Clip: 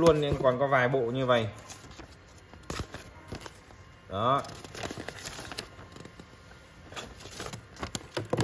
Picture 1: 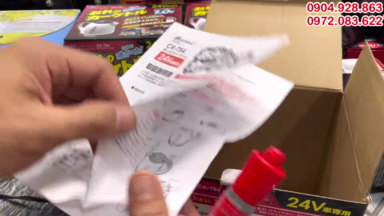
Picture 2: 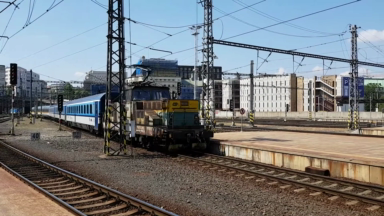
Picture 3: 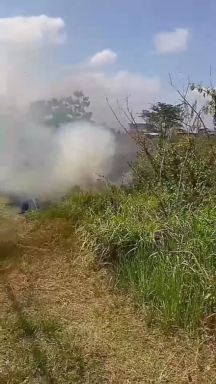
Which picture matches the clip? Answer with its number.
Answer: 1